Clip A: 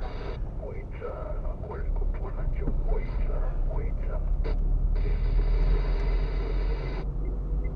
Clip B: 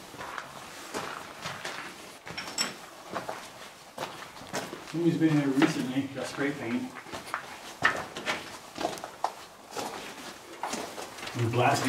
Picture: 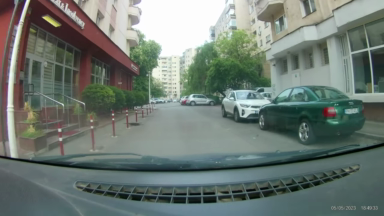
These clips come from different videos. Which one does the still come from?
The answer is A